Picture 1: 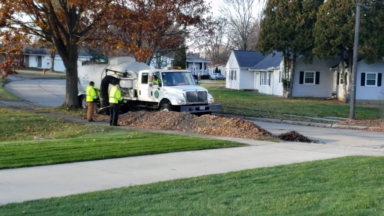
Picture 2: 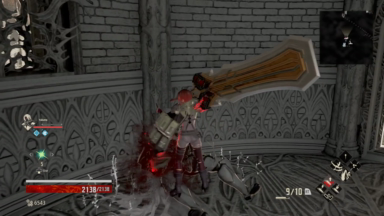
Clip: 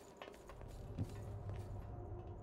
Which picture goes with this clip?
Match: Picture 2